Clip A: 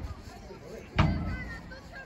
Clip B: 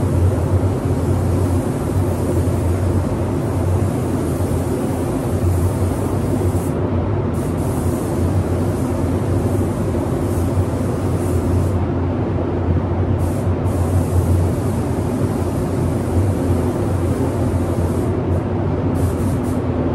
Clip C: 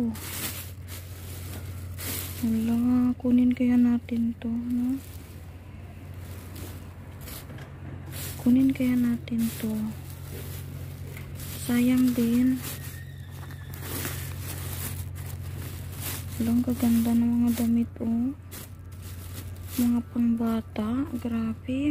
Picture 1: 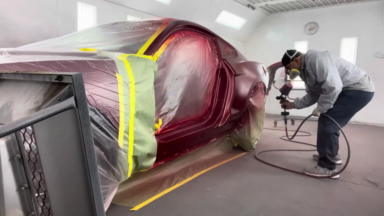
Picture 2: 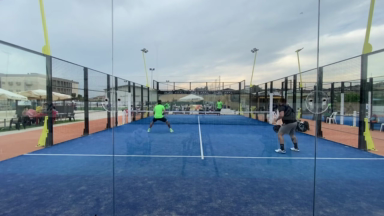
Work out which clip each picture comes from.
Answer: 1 B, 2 A